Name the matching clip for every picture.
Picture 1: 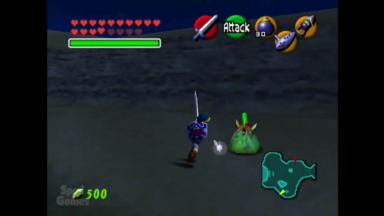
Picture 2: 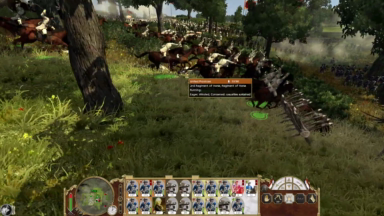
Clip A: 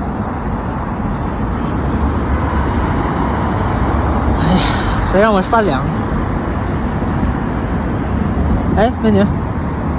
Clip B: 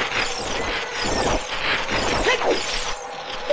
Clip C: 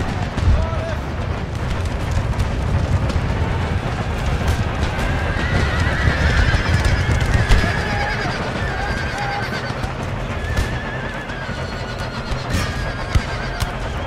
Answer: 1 B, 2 C